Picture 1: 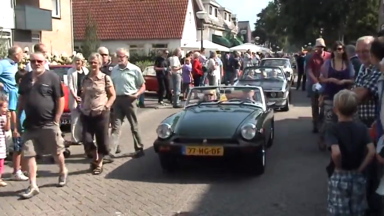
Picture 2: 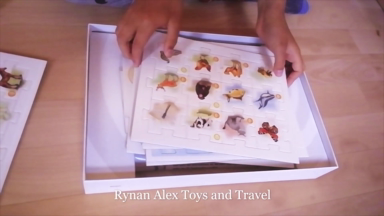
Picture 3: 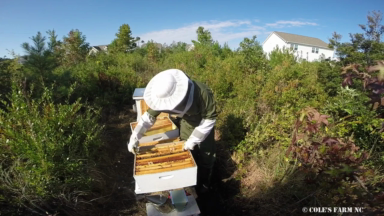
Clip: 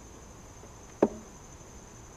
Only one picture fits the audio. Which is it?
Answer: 3